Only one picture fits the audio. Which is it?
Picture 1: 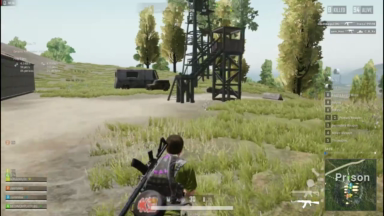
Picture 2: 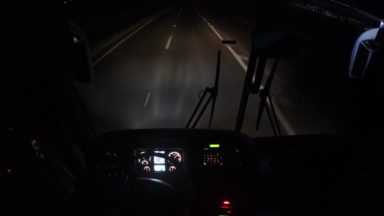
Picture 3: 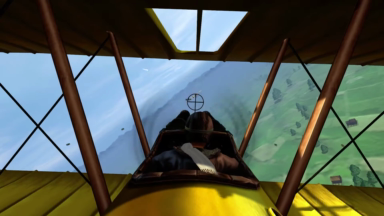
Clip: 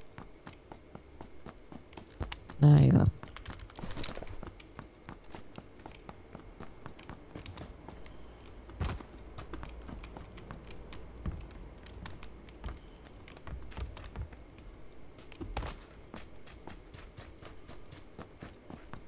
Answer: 1